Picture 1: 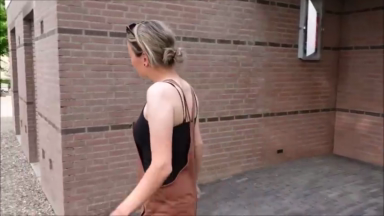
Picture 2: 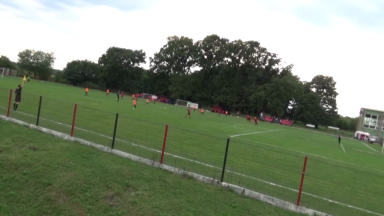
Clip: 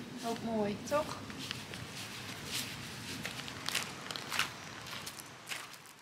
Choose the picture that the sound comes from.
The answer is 1